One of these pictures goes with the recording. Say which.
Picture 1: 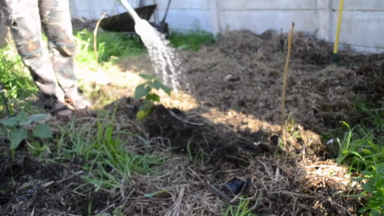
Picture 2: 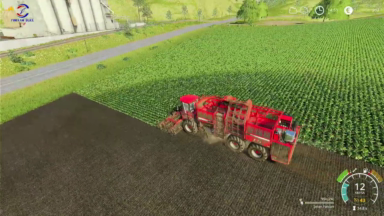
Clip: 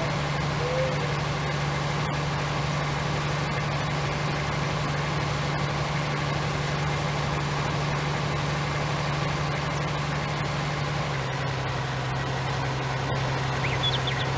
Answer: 2